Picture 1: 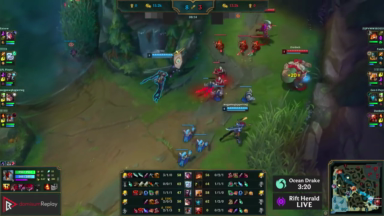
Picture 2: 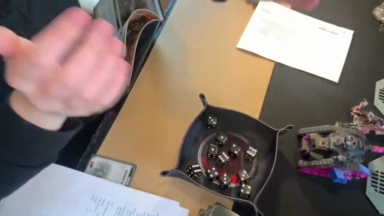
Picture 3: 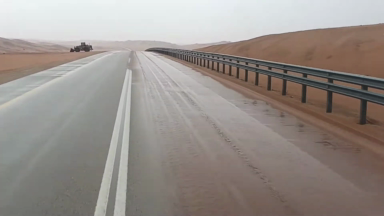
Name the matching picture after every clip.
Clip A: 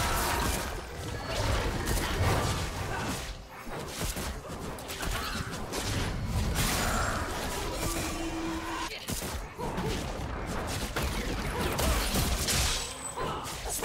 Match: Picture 1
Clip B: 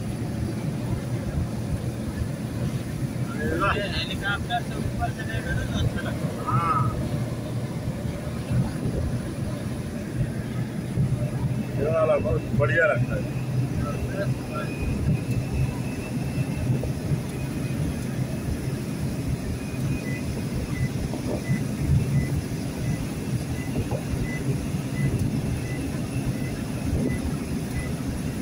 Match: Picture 3